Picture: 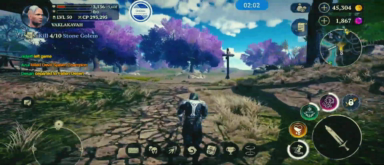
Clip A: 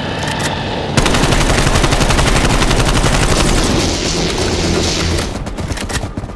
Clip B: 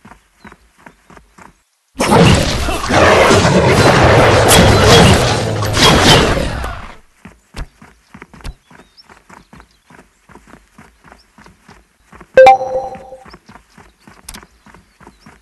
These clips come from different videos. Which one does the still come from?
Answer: B